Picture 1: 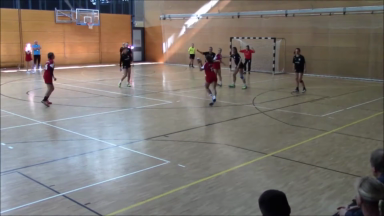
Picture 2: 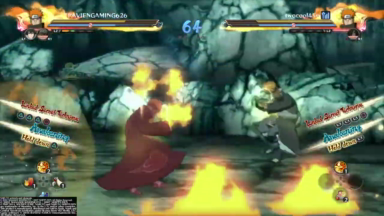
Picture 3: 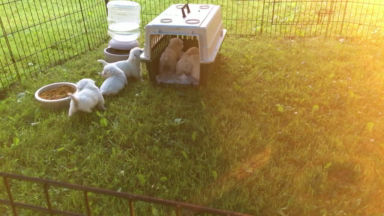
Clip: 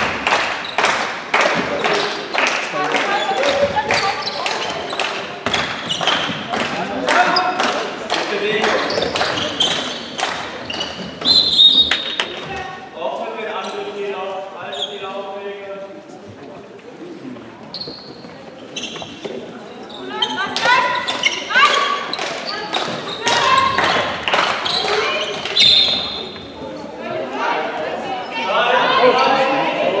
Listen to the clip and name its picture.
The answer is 1